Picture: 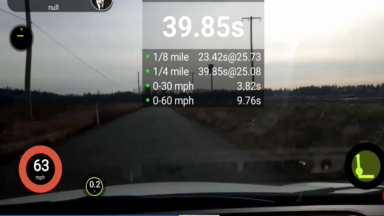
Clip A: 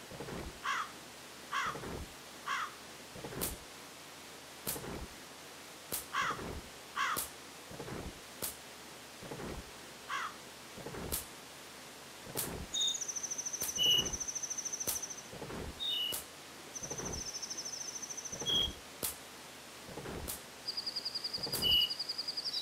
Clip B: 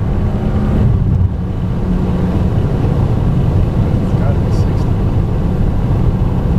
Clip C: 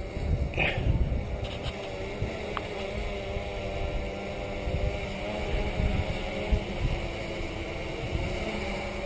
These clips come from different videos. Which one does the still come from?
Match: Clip B